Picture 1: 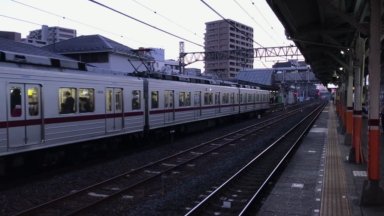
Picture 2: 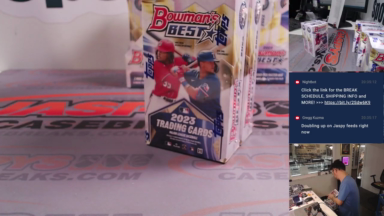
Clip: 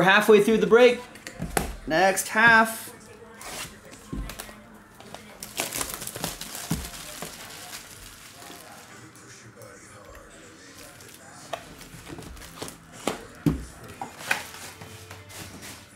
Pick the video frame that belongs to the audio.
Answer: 2